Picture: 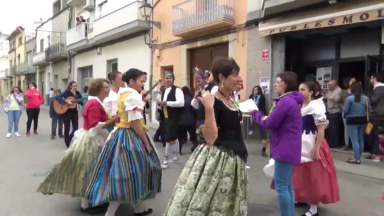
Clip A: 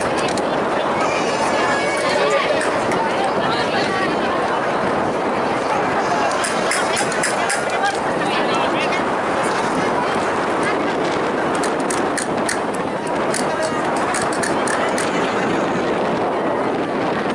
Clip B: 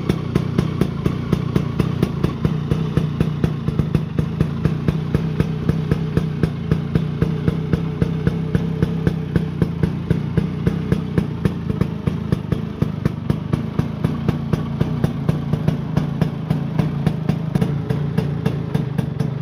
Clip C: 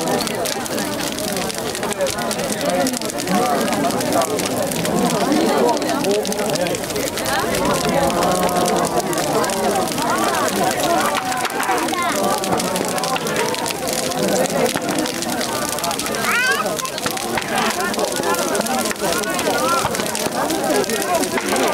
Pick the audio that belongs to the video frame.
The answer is A